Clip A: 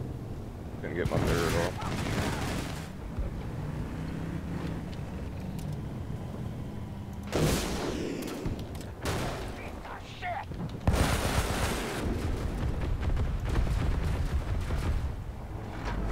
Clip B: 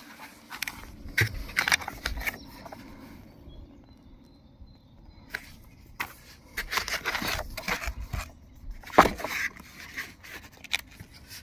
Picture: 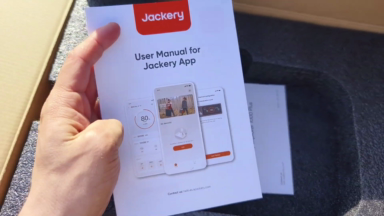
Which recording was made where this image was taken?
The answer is B